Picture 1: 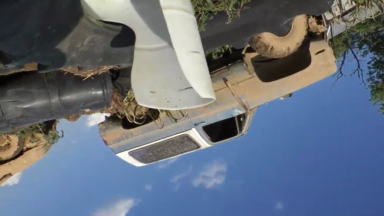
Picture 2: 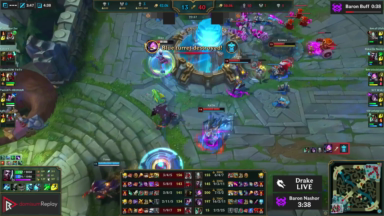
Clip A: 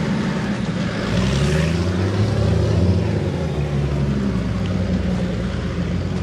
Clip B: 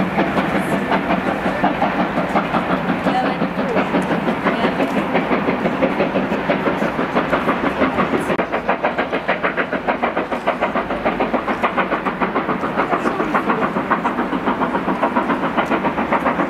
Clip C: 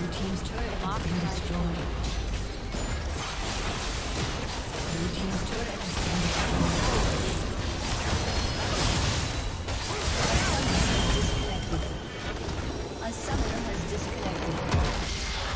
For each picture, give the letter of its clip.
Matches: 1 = A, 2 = C